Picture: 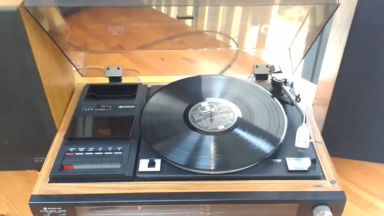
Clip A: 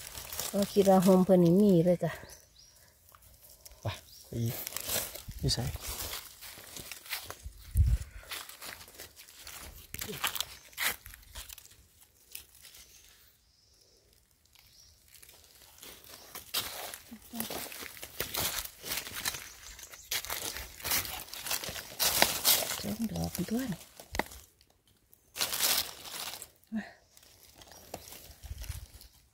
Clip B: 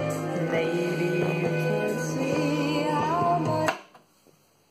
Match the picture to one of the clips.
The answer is B